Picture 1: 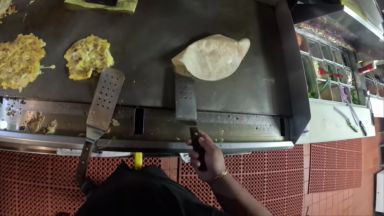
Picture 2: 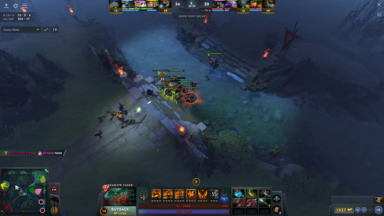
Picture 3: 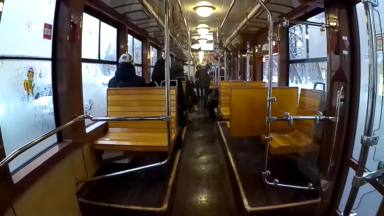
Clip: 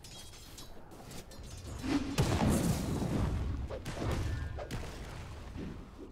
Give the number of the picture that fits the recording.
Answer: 2